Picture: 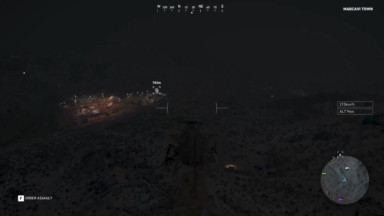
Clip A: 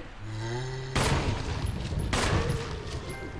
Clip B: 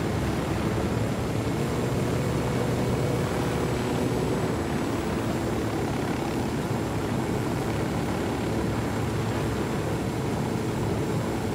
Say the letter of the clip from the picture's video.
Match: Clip B